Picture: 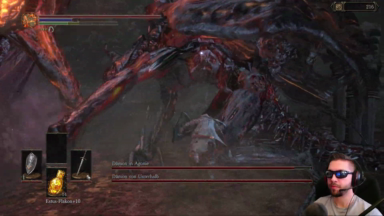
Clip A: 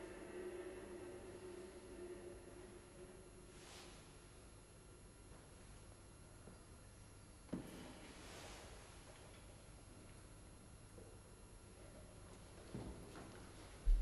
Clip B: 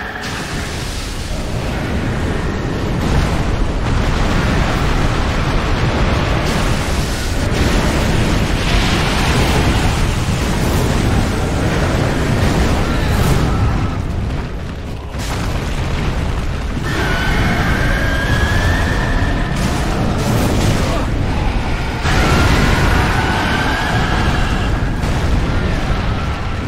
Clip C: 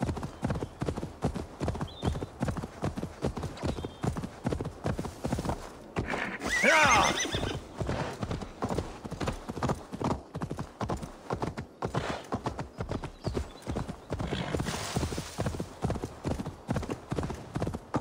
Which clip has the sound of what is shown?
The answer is B